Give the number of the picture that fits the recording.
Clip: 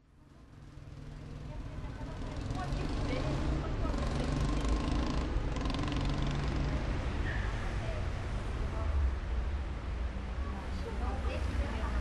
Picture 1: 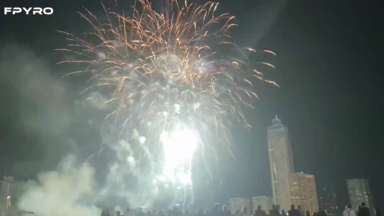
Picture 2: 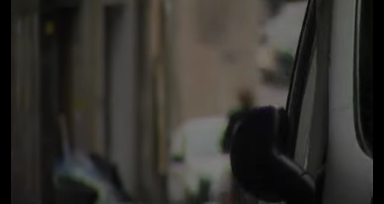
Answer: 2